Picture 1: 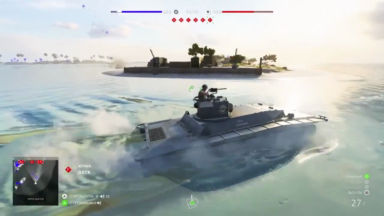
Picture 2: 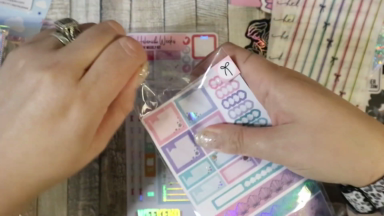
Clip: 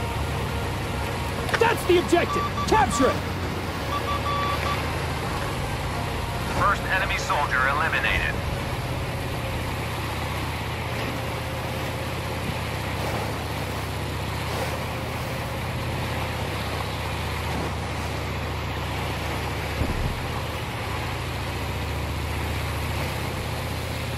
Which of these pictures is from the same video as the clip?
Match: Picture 1